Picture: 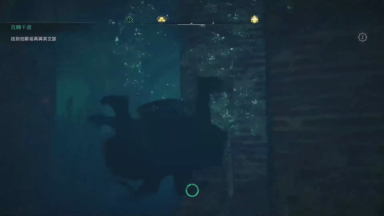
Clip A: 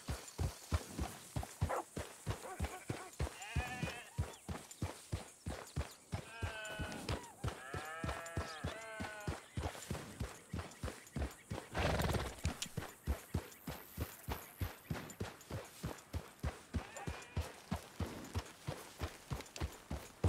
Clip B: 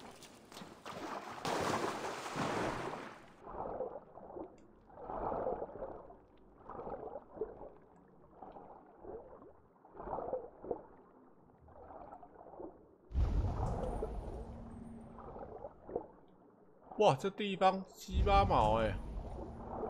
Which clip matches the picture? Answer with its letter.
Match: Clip B